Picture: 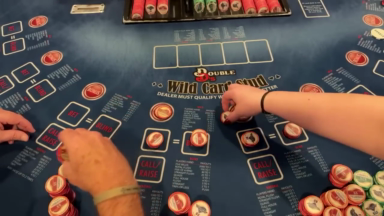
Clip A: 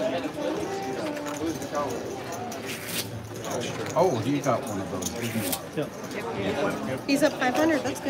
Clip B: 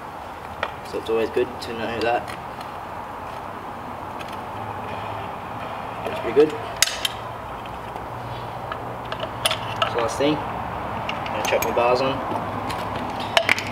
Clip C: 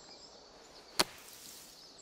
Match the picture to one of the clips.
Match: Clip A